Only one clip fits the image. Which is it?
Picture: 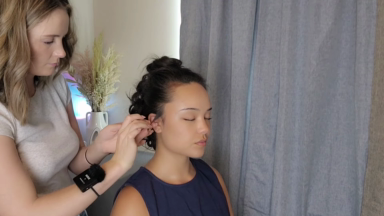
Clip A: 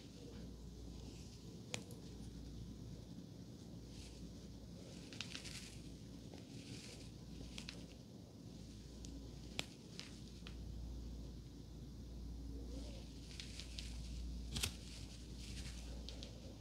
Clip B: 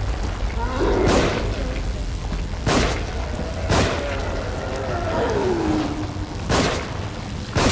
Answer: A